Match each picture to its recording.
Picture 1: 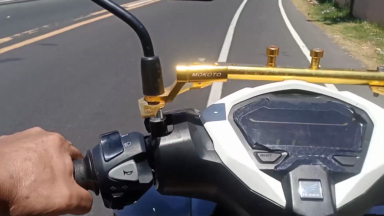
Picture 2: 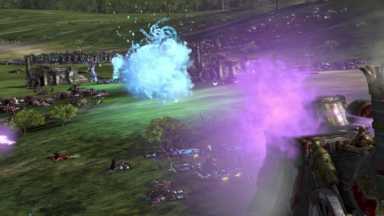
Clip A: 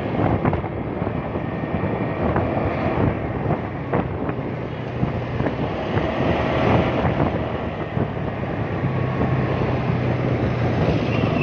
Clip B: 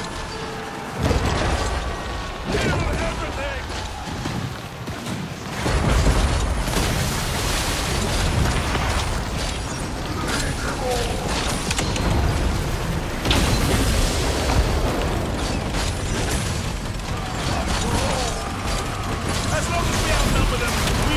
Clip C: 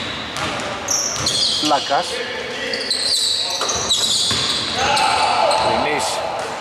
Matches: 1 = A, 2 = B